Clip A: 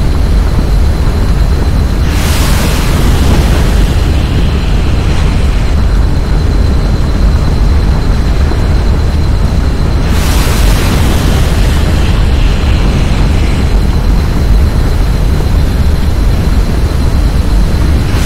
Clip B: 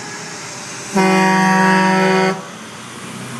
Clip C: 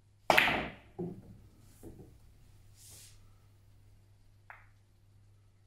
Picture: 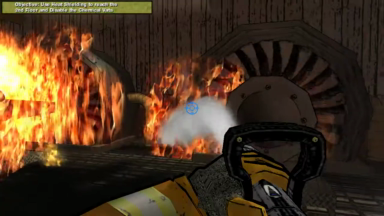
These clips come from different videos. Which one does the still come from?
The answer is A